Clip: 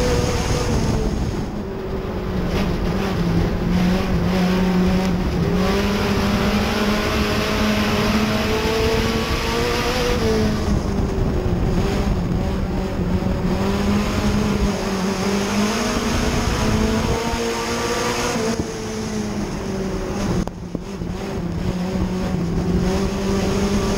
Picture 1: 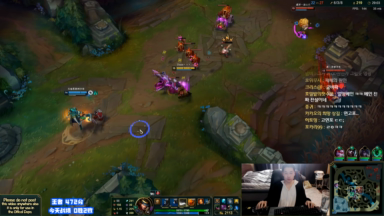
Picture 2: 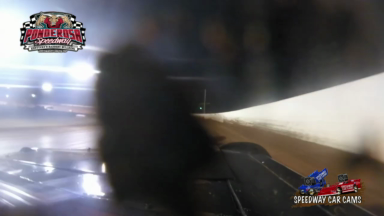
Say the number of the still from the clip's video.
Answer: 2